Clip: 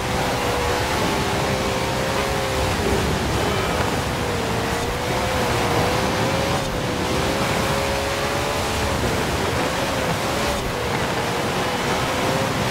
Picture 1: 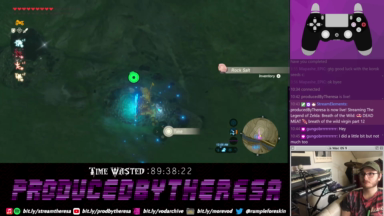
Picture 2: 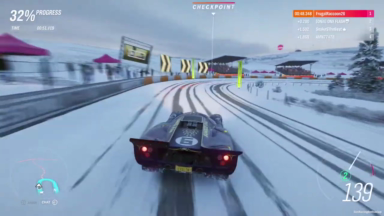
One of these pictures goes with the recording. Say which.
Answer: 2